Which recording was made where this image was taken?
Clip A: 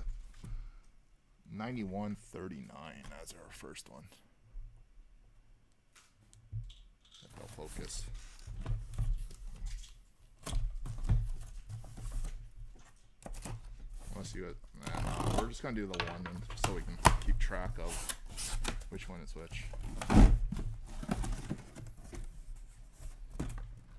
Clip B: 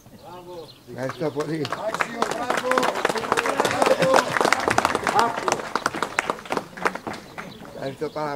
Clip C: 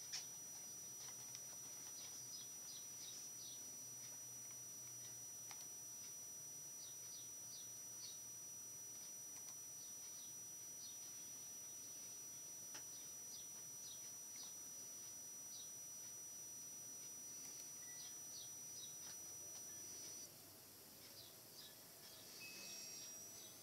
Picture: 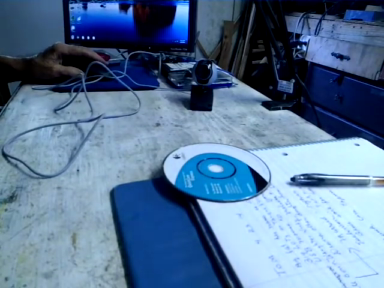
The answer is C